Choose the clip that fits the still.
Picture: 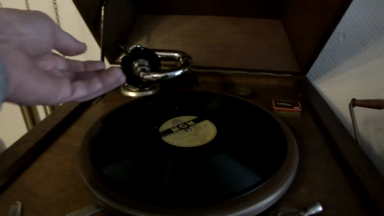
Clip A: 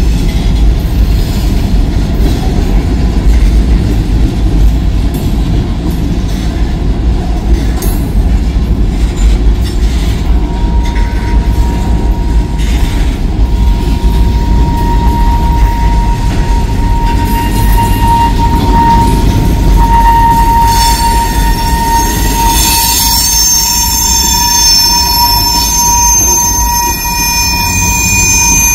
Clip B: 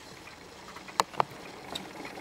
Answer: B